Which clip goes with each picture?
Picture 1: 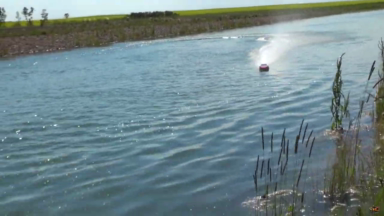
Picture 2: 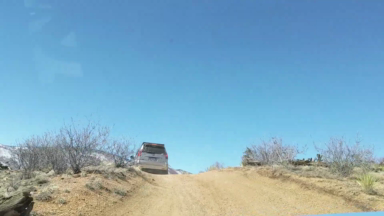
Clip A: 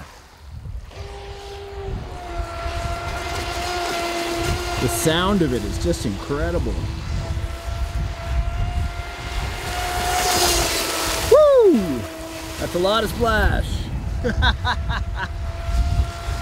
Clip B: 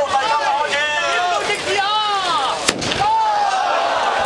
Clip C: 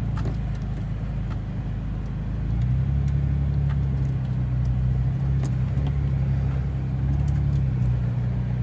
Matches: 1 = A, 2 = C